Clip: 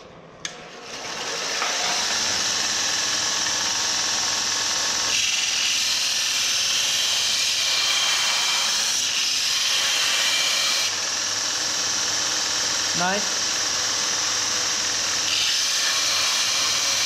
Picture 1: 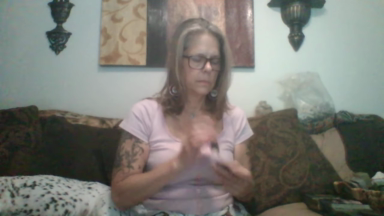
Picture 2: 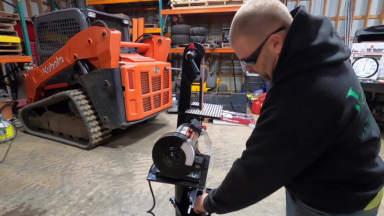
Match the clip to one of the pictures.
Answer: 2